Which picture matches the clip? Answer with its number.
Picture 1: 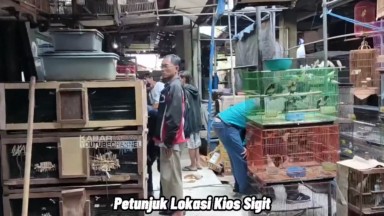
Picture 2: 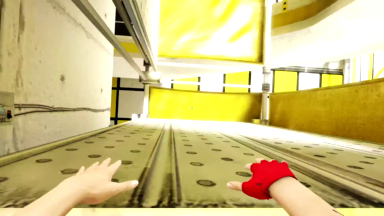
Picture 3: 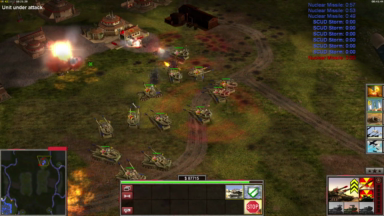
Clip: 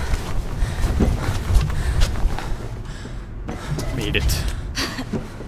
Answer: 2